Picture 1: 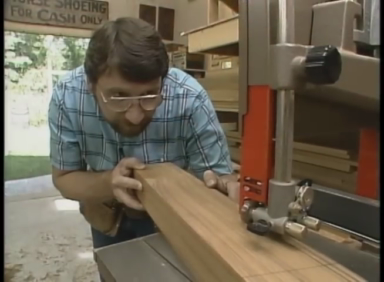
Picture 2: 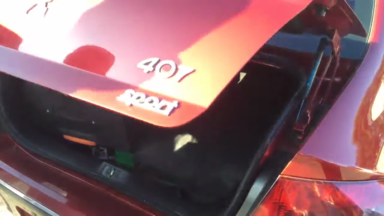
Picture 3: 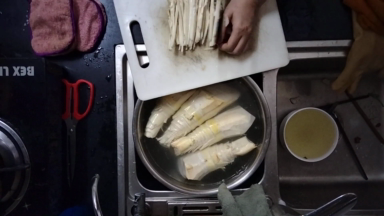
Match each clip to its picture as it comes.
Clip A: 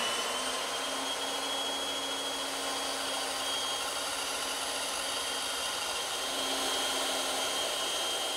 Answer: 1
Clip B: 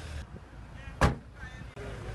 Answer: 2